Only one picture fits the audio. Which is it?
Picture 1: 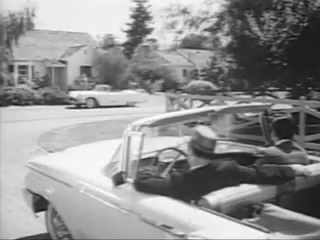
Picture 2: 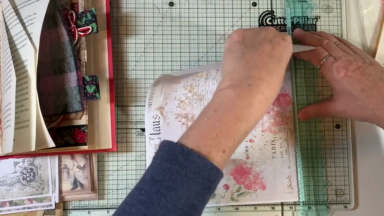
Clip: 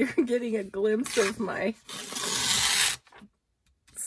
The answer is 2